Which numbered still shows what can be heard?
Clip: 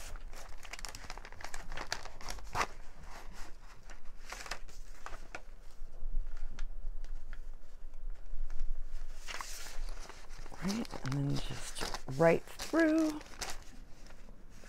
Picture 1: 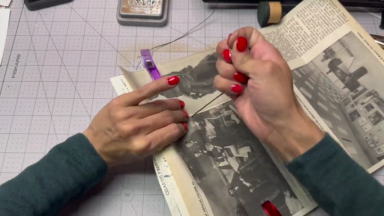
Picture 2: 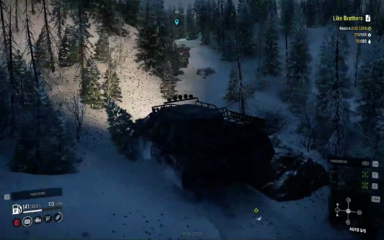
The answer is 1